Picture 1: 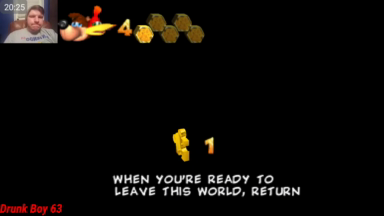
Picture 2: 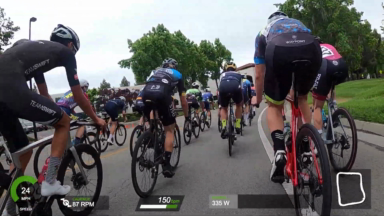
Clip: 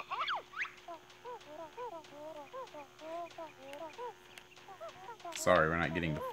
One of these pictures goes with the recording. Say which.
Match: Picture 1